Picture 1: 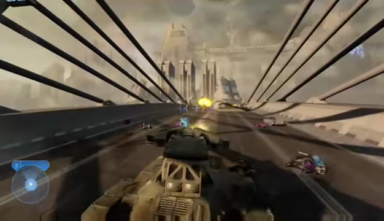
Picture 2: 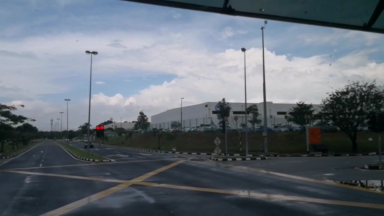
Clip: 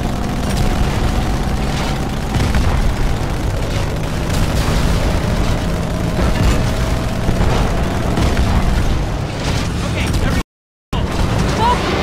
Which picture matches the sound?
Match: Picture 1